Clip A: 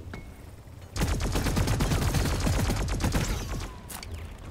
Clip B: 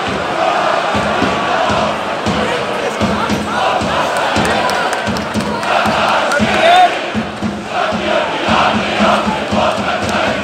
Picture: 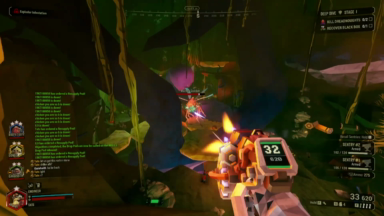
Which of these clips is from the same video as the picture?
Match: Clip A